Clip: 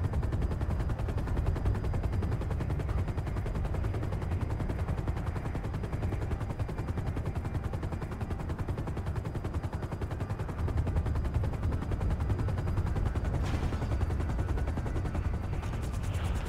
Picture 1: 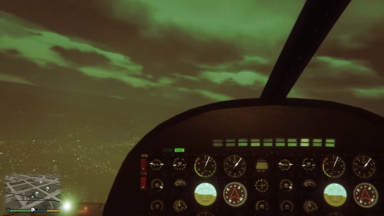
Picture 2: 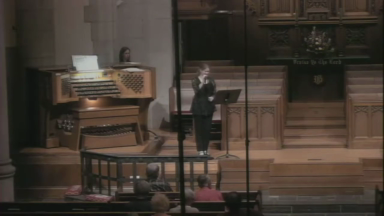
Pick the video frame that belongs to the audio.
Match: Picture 1